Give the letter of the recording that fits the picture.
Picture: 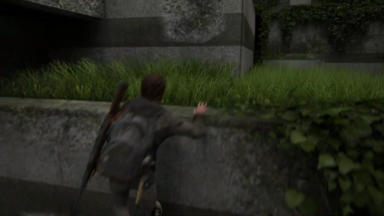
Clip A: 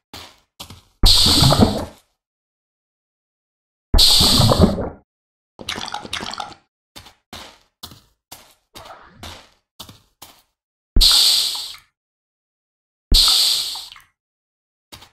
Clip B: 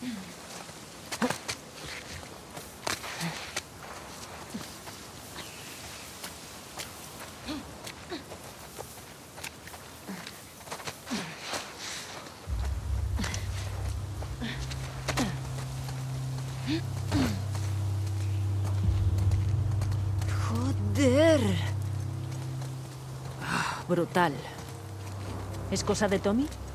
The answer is B